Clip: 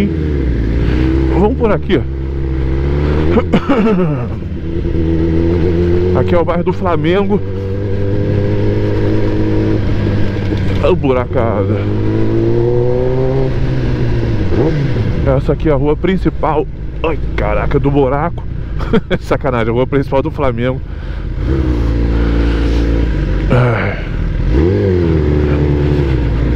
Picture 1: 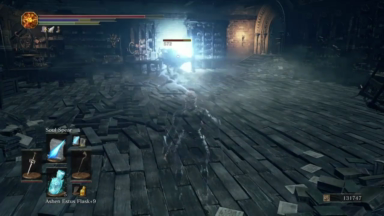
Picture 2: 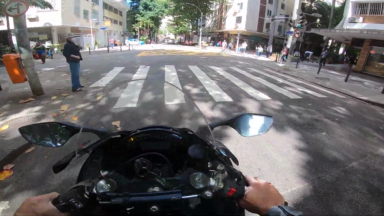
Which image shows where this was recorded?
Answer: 2